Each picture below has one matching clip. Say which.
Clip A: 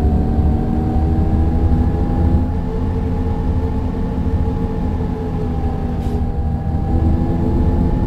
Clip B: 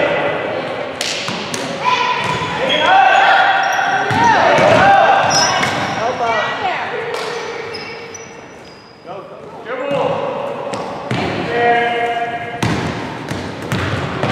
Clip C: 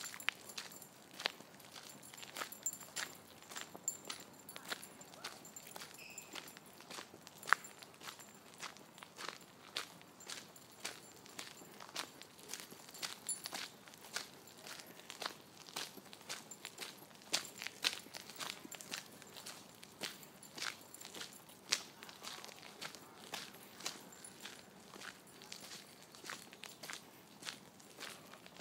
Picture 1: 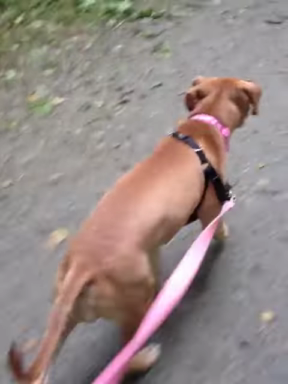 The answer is C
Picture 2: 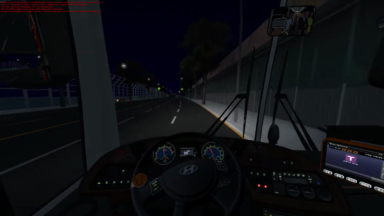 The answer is A